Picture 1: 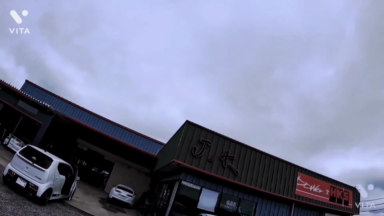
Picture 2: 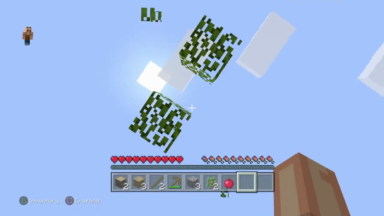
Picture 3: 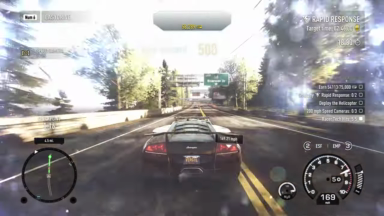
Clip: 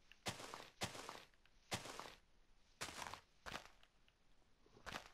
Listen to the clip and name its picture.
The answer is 2